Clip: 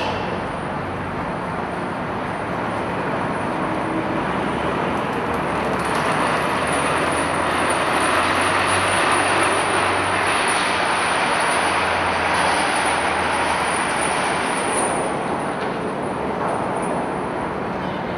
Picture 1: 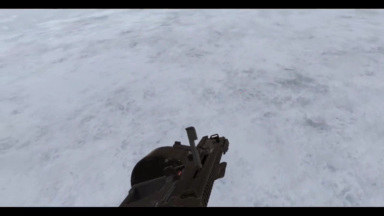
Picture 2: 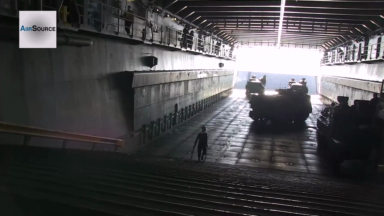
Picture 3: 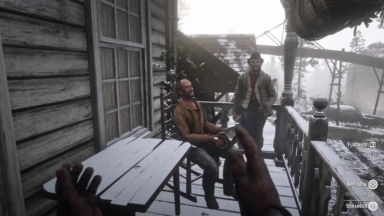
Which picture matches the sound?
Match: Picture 2